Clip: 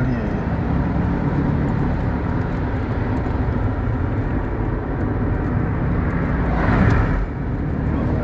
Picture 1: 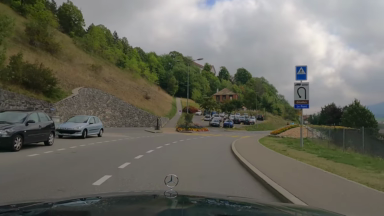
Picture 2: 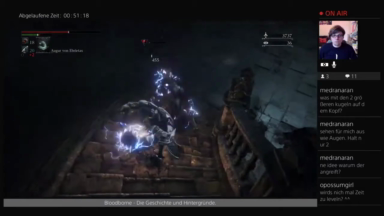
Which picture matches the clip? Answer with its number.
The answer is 1